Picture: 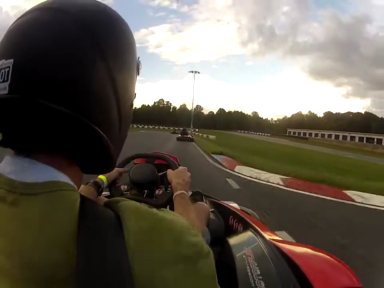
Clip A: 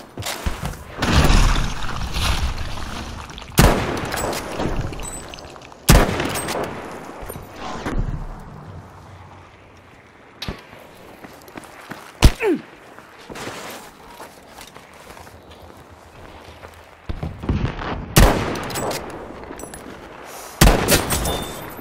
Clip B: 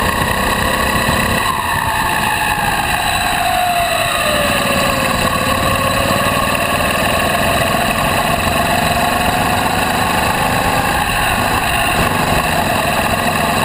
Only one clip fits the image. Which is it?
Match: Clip B